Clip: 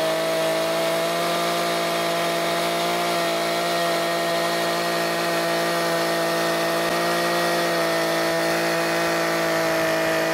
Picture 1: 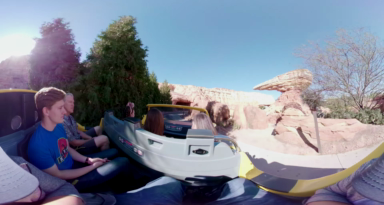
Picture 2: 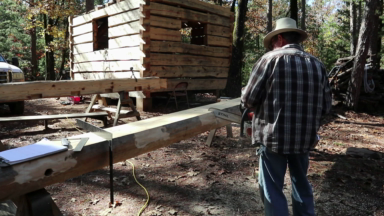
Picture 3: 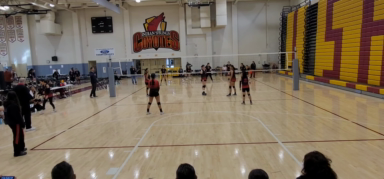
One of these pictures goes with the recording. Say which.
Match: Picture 2